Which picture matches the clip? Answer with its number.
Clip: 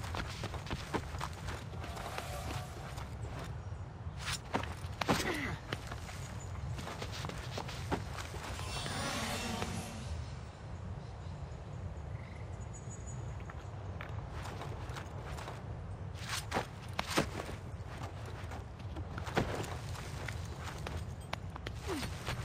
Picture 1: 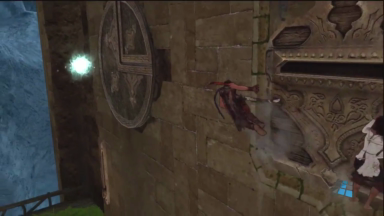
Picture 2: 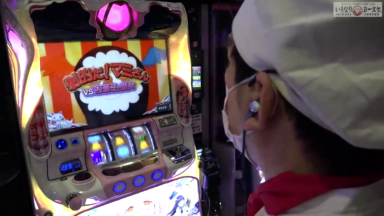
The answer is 1